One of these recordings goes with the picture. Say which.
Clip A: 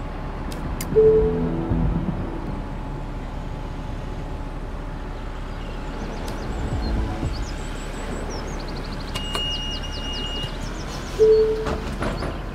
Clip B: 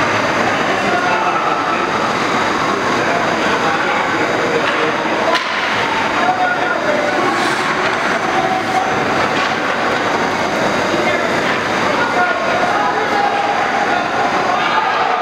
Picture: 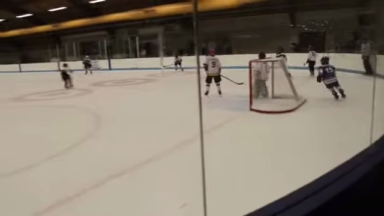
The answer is B